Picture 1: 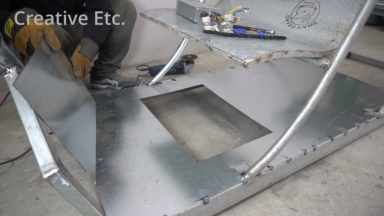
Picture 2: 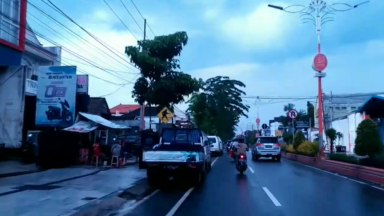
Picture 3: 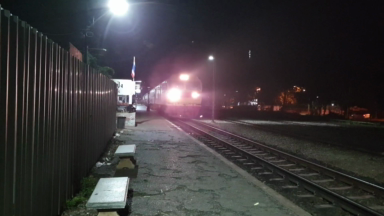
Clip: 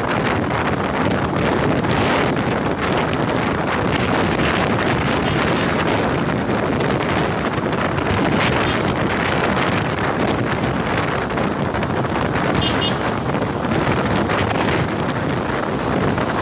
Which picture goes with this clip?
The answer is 2